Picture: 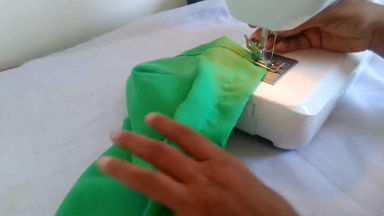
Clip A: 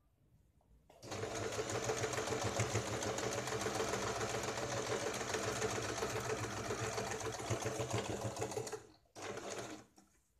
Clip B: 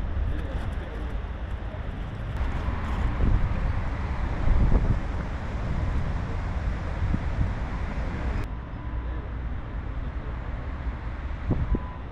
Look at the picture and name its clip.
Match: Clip A